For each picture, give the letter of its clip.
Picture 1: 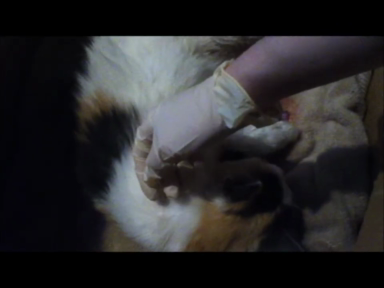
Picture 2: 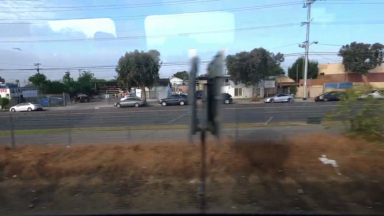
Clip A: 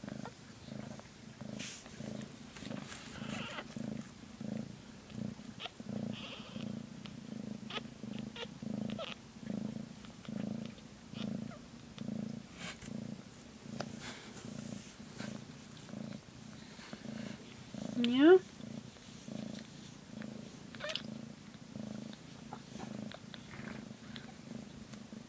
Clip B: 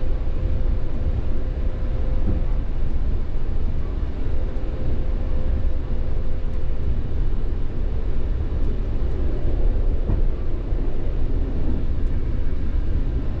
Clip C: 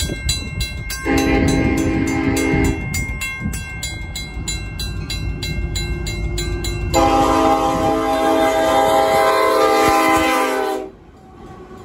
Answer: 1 A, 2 B